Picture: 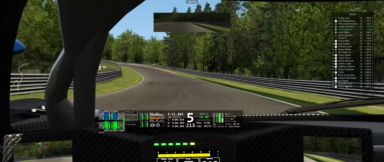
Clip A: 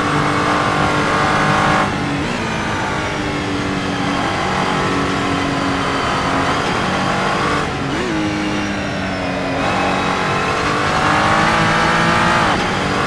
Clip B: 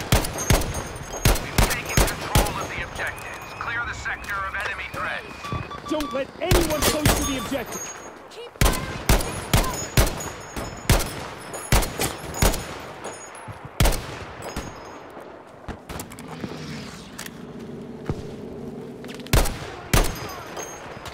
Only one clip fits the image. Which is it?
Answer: A